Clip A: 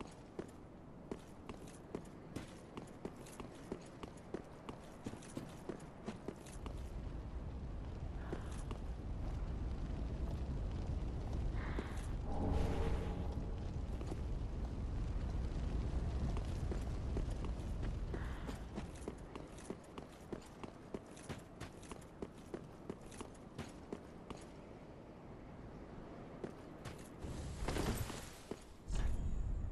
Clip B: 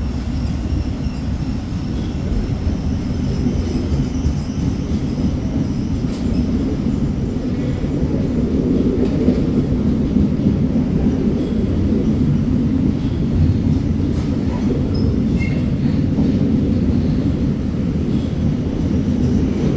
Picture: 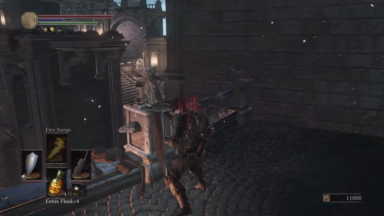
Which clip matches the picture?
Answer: A